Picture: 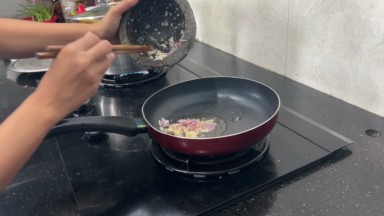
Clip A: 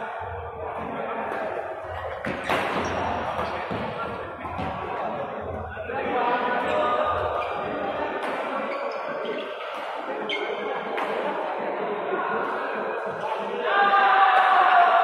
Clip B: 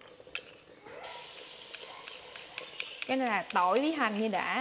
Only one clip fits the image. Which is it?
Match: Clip B